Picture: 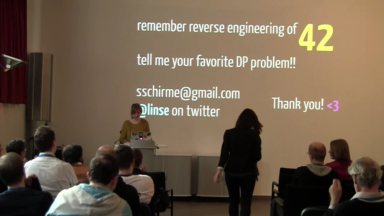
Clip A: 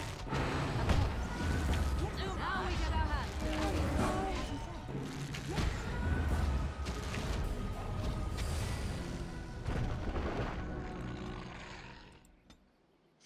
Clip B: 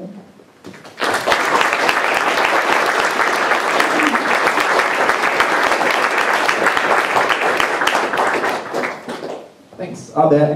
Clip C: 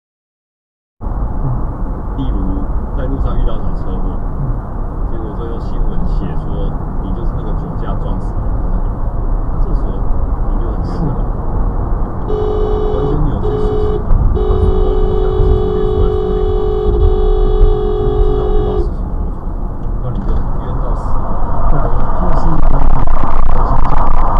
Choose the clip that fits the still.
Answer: B